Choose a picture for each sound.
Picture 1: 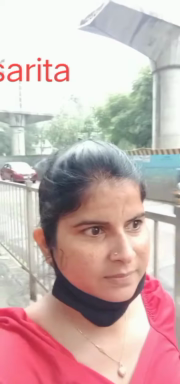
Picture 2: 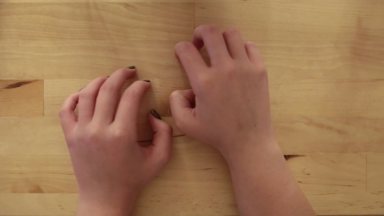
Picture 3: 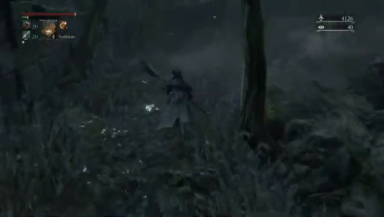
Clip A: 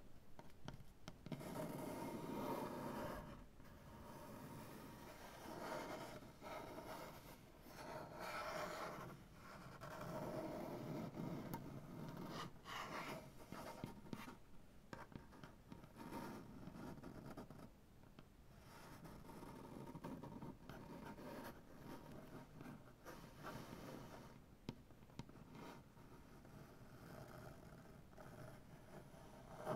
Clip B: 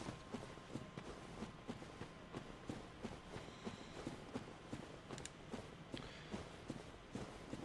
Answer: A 2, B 3